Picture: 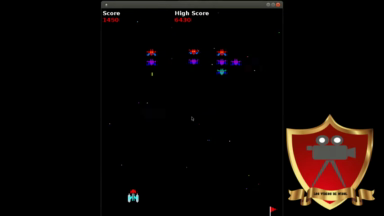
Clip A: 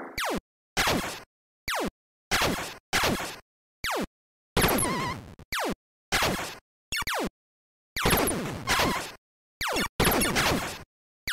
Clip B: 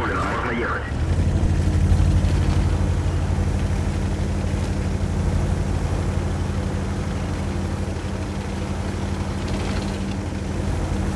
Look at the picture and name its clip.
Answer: A